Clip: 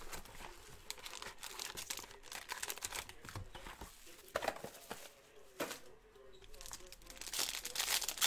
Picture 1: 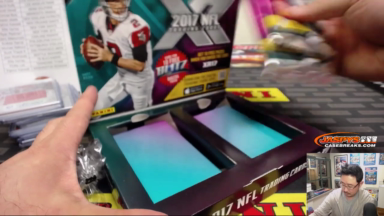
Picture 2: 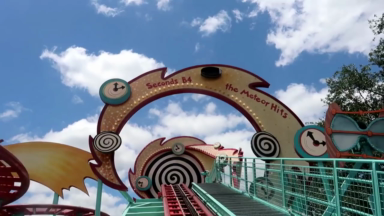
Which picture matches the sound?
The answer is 1